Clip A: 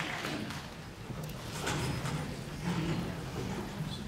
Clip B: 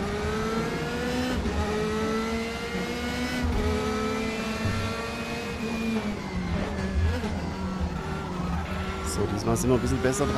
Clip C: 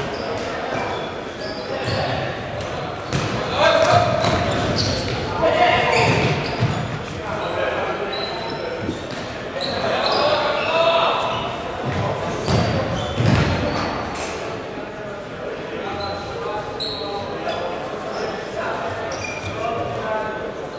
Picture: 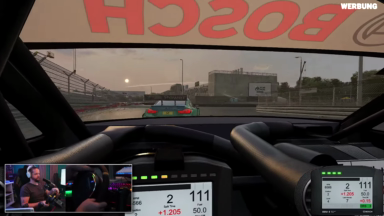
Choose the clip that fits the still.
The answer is B